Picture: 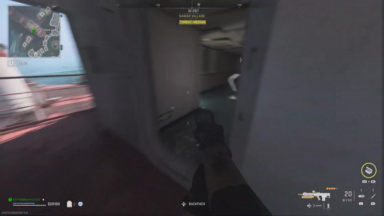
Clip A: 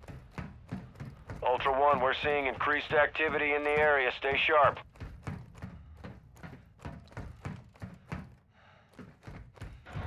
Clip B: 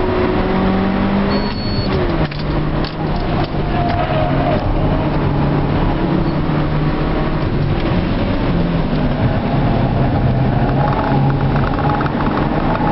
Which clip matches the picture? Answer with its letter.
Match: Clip A